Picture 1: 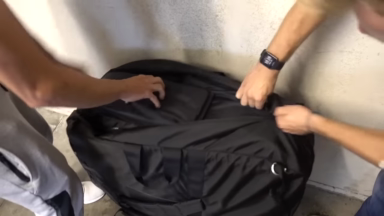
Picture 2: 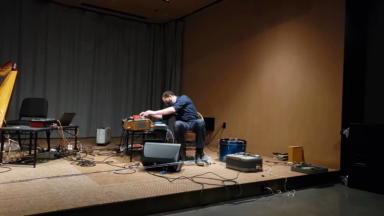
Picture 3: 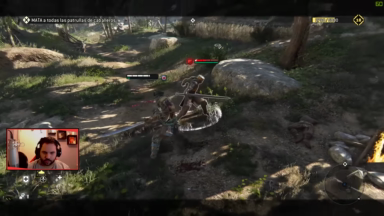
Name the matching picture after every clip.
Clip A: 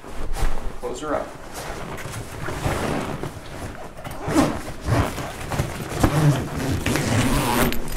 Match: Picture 1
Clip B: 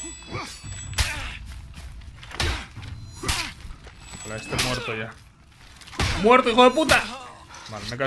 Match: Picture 3